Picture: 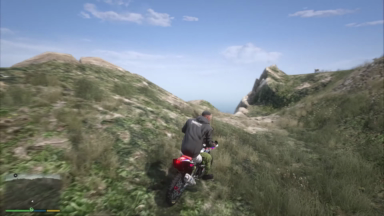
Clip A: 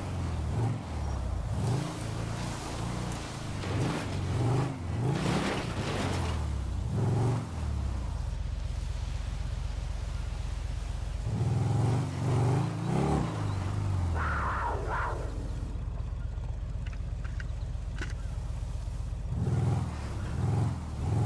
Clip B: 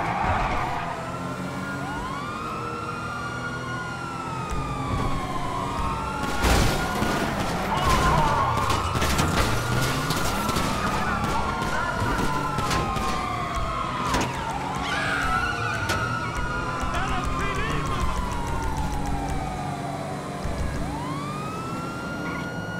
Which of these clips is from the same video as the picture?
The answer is A